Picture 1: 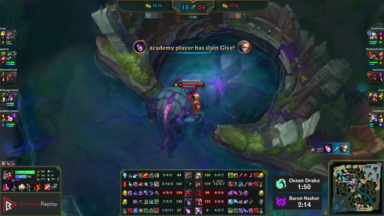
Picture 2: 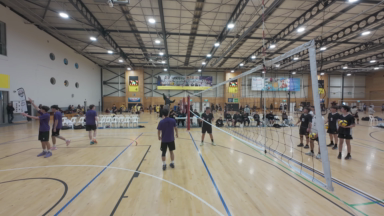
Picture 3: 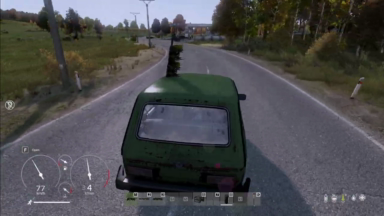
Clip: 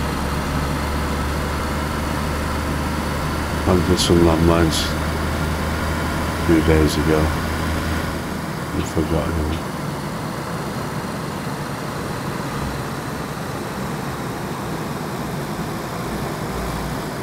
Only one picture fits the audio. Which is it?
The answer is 3